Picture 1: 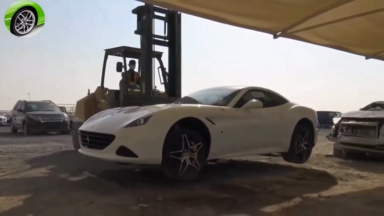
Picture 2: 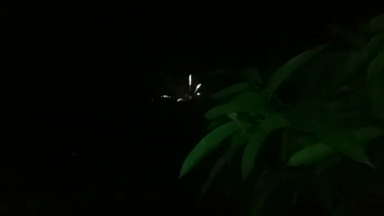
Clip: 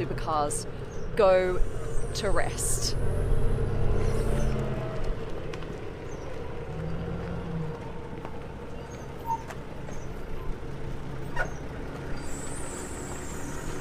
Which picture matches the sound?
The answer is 1